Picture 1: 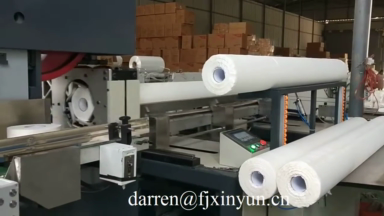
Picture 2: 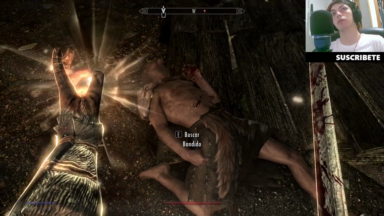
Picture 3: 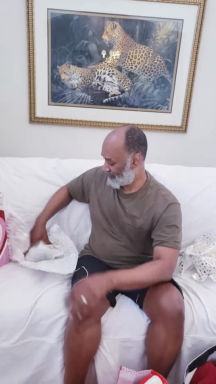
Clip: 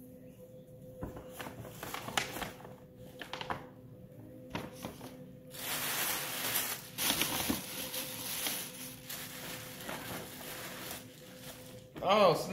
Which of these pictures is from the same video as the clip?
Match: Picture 3